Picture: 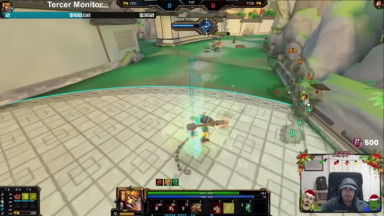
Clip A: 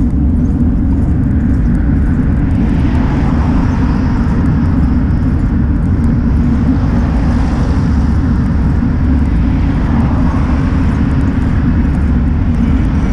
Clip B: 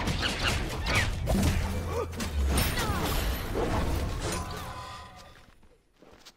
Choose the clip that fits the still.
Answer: B